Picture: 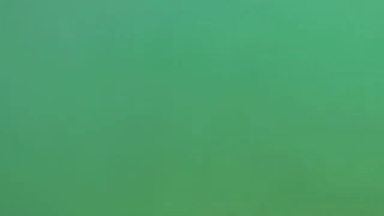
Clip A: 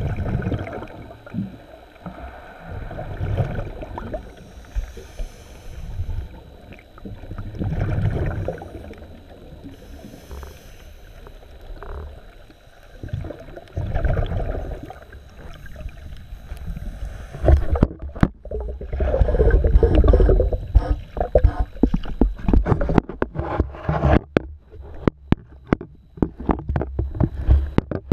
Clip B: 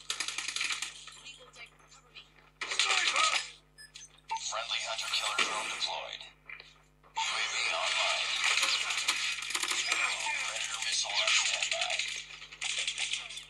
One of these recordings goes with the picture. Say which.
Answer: A